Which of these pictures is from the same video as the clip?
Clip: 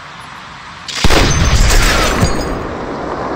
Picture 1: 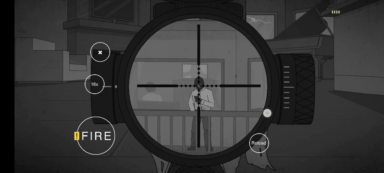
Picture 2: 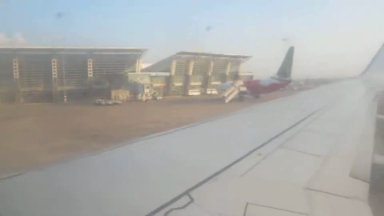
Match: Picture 1